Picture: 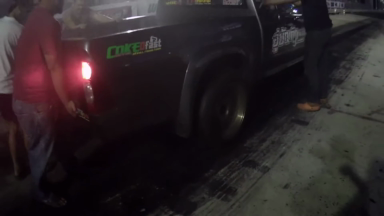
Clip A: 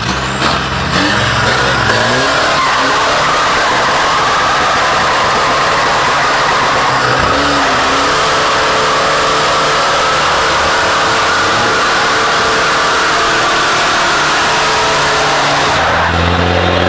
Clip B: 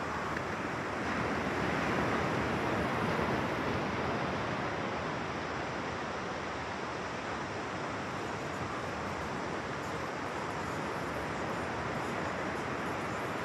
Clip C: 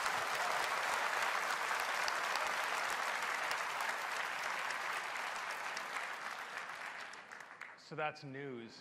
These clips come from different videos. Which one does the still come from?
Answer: A